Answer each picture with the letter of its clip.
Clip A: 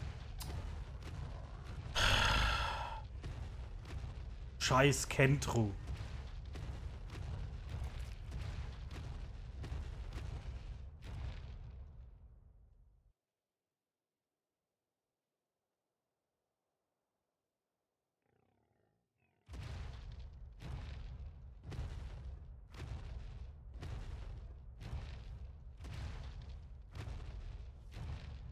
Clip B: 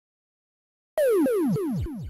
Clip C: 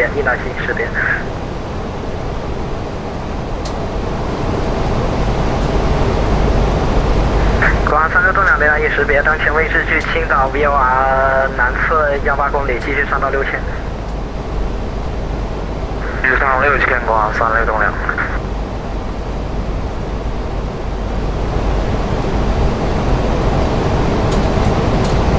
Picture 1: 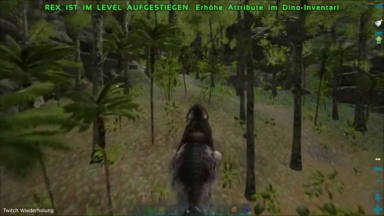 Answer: A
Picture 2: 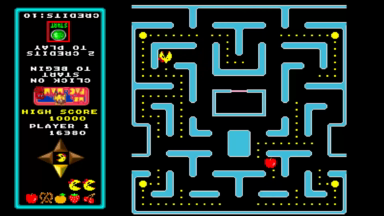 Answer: B